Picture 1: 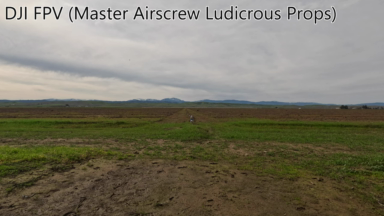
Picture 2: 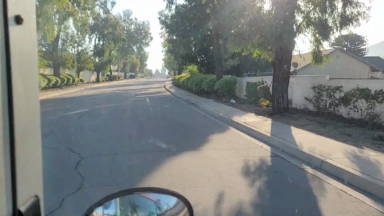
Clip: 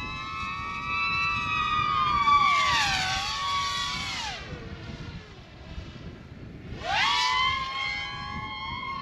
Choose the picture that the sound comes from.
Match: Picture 1